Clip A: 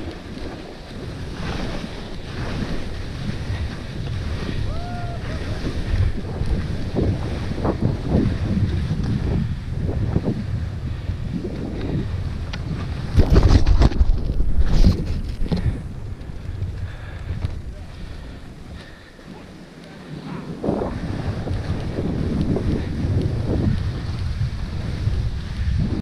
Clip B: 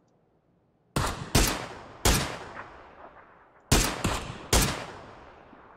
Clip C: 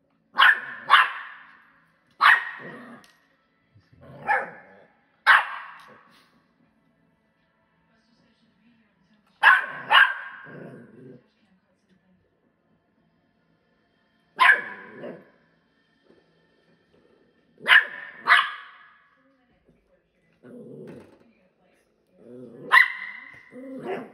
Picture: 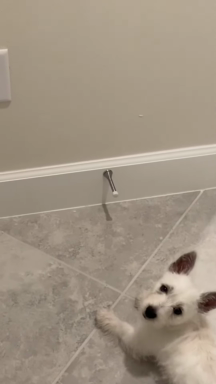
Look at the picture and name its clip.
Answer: C